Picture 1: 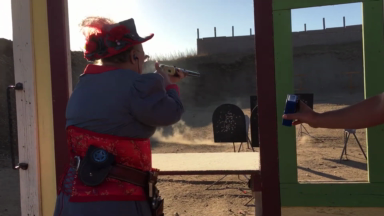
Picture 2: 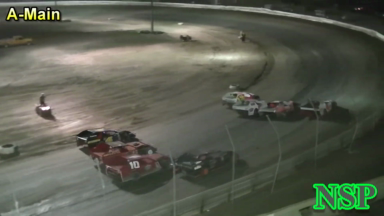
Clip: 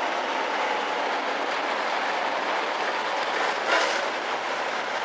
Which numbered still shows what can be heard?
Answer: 2